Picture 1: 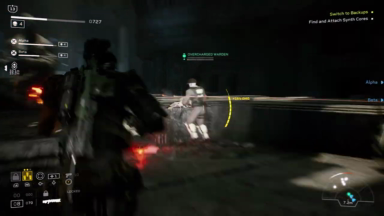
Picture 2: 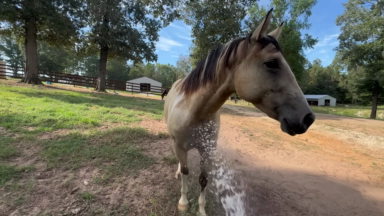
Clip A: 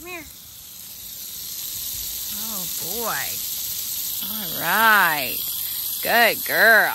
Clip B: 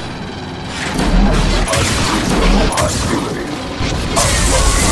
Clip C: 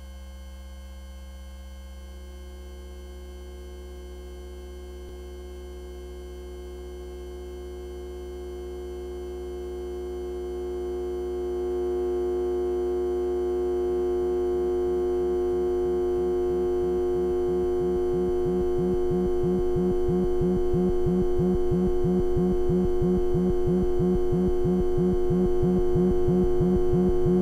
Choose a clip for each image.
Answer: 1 B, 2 A